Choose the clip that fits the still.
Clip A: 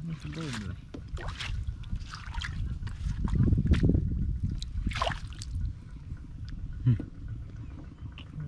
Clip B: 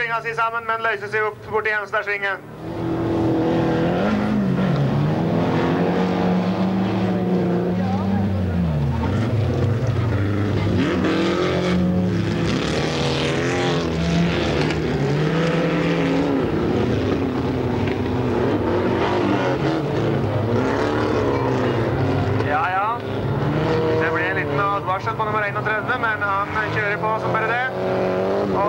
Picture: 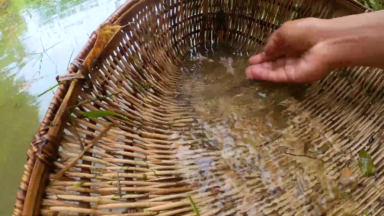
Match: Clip A